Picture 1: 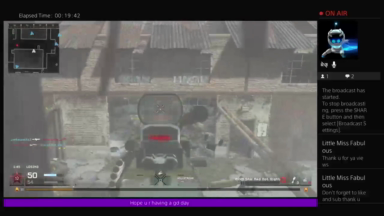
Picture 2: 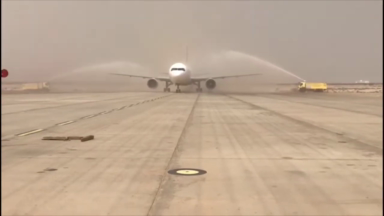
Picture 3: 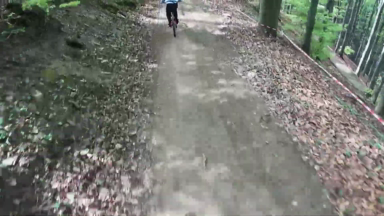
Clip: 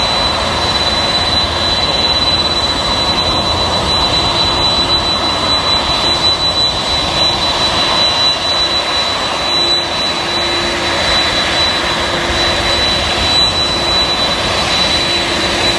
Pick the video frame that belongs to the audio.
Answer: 2